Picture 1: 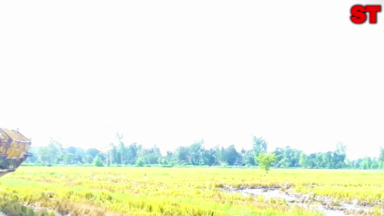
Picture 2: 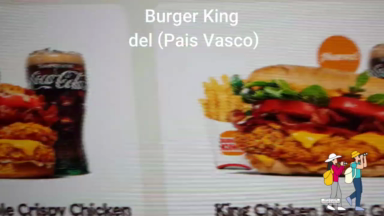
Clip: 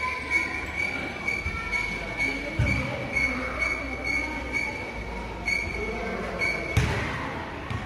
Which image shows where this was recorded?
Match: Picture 2